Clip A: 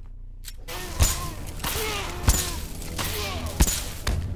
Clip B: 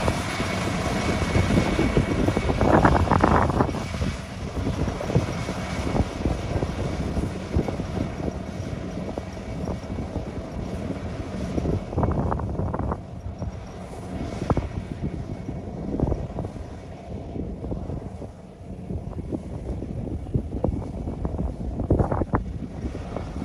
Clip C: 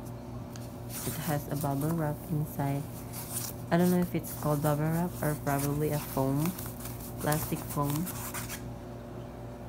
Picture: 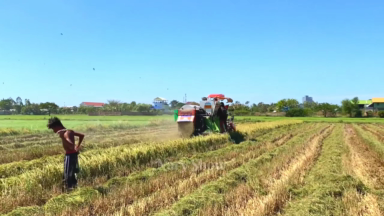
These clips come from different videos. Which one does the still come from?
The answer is B